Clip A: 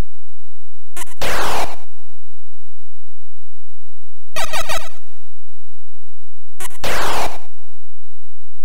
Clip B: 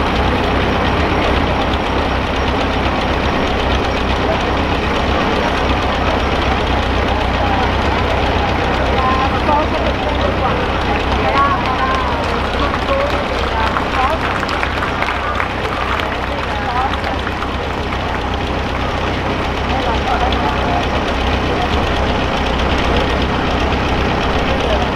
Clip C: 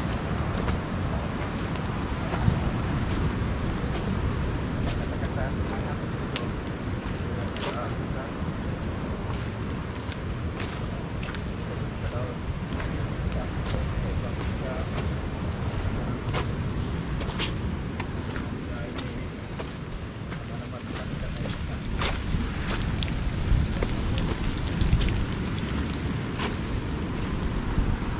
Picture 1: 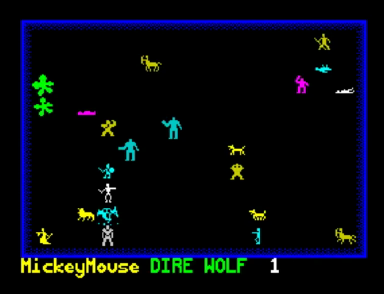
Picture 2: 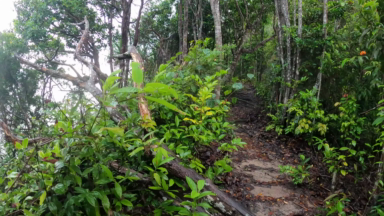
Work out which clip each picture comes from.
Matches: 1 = A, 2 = C